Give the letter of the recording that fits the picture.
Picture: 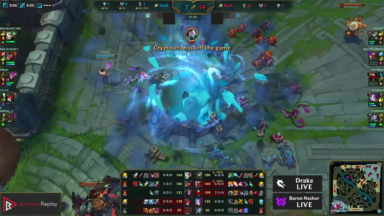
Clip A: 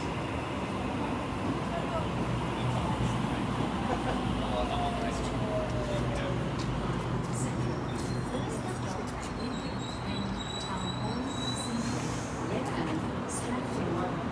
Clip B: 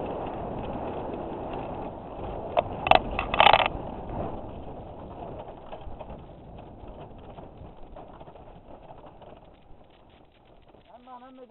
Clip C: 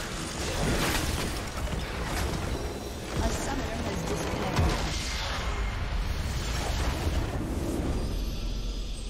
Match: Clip C